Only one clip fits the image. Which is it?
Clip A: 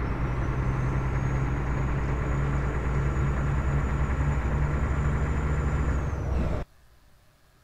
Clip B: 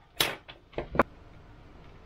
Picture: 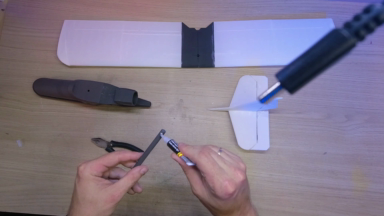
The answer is B